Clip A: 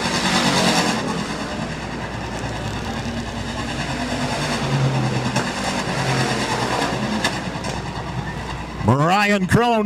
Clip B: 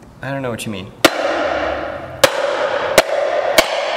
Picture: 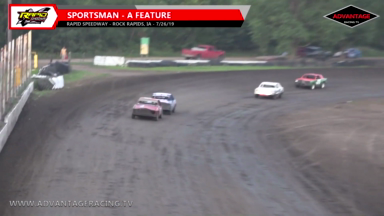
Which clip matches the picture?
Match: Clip A